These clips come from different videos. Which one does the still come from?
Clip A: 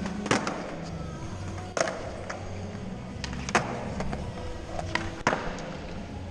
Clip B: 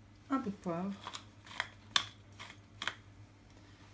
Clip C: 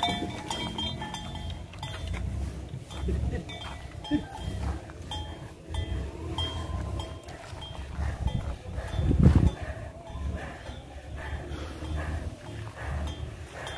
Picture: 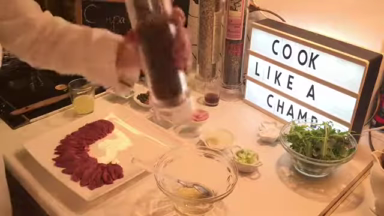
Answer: B